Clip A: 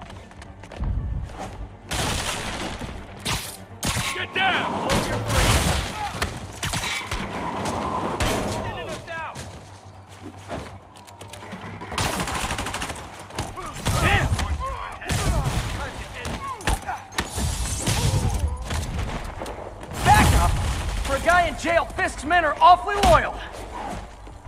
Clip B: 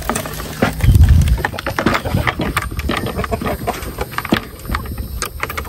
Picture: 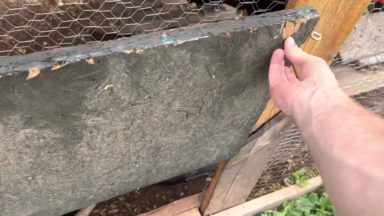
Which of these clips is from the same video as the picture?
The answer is B